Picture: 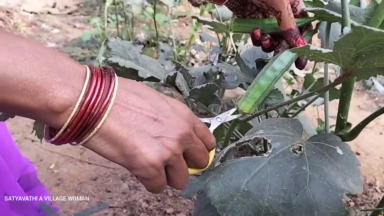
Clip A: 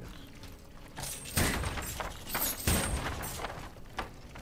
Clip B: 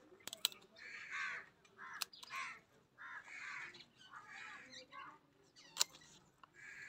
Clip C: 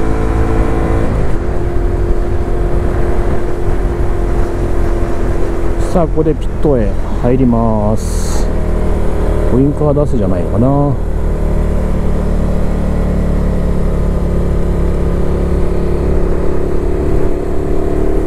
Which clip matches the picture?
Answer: B